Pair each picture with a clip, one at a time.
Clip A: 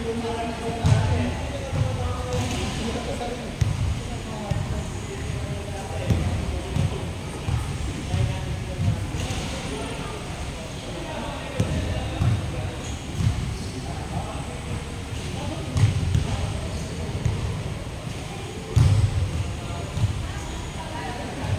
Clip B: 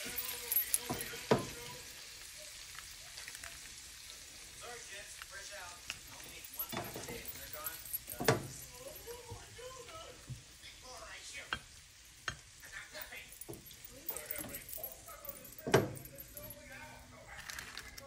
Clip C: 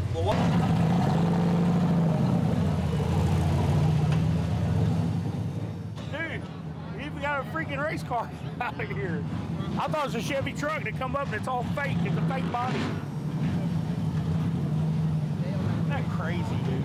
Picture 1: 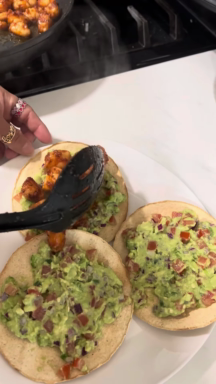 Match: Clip B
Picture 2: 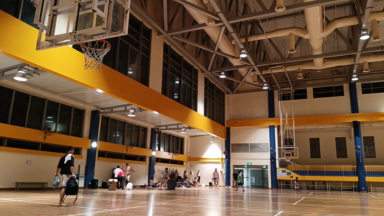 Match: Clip A